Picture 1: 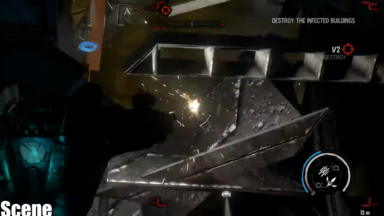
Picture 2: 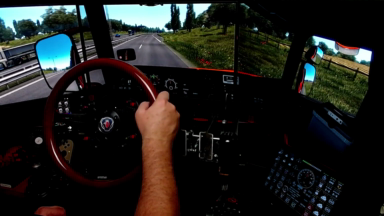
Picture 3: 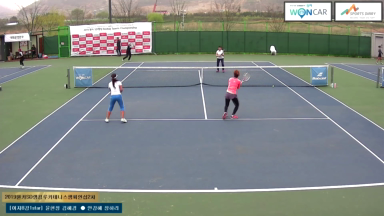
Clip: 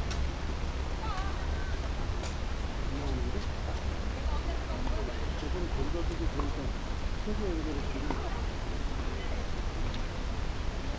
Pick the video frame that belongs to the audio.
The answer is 3